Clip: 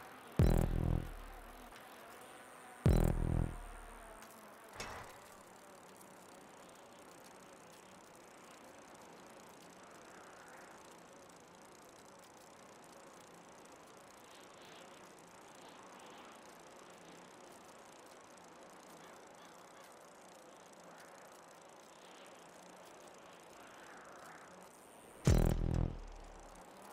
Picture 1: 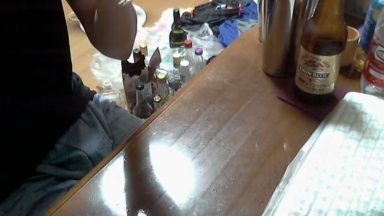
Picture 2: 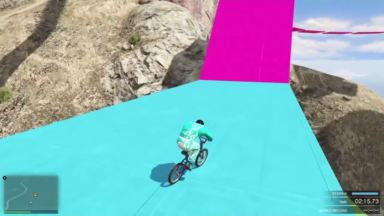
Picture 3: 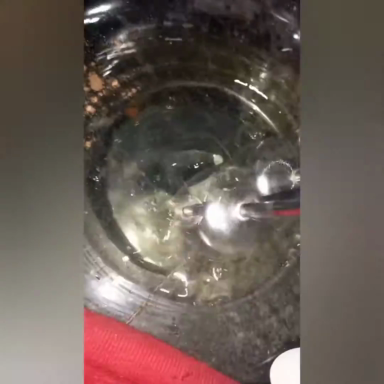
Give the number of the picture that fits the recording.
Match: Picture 2